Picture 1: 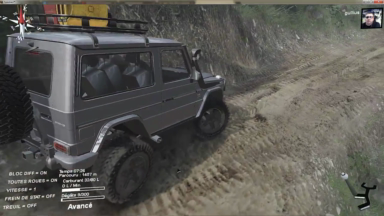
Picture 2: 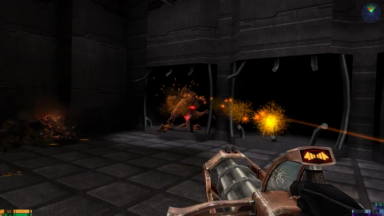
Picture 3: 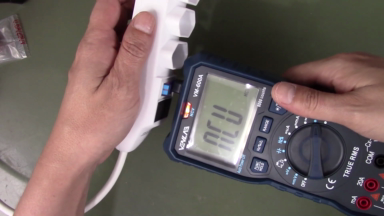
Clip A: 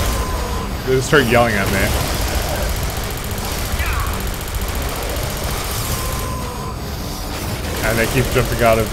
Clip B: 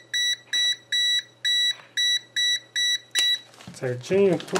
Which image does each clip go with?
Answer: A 2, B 3